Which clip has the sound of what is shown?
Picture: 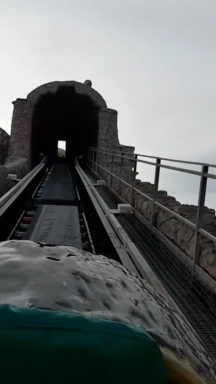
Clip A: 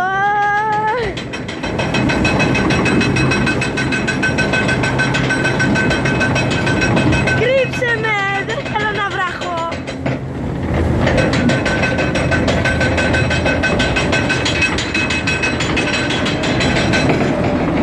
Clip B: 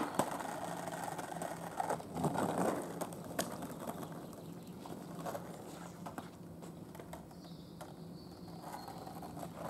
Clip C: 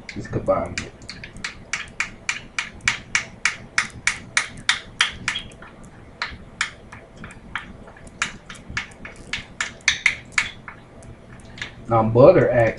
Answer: A